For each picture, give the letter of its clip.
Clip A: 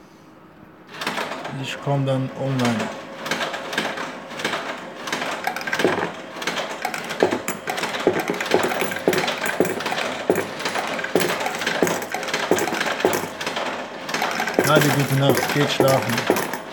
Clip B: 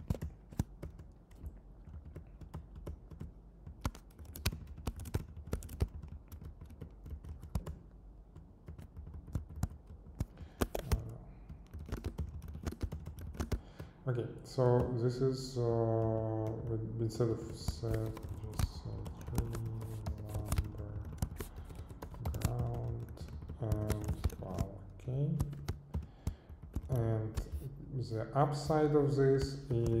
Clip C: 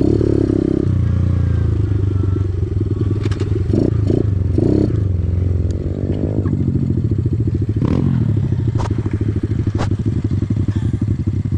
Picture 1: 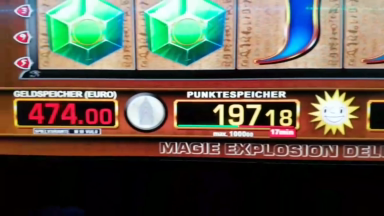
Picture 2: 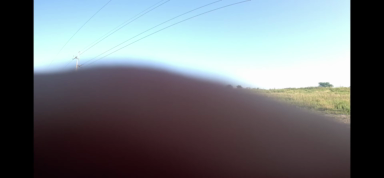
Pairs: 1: A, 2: C